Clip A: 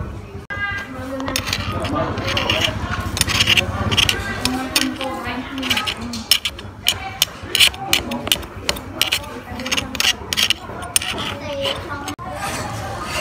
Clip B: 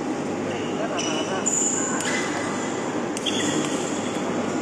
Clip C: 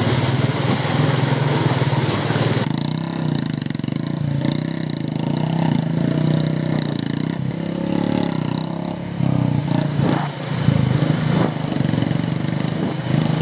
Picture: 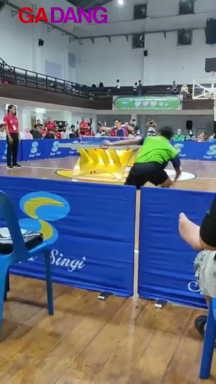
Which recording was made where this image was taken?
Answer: B